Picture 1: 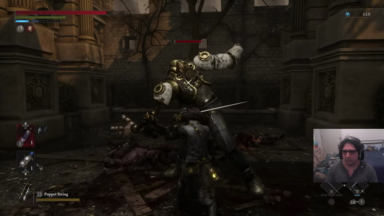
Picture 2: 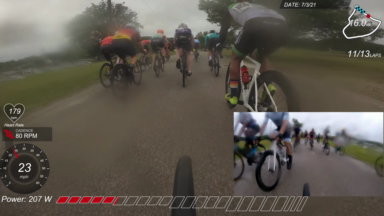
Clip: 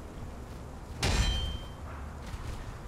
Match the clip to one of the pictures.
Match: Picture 1